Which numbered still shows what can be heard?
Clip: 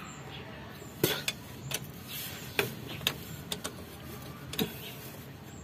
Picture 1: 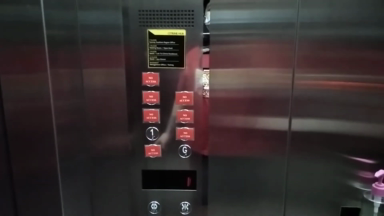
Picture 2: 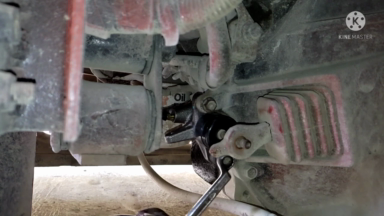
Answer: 2